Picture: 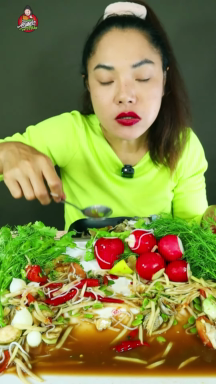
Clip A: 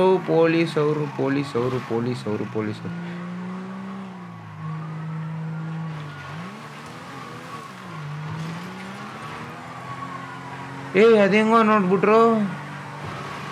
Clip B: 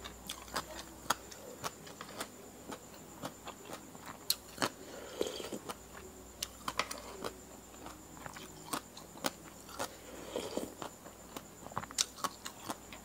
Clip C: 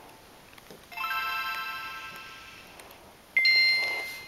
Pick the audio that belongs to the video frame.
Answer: B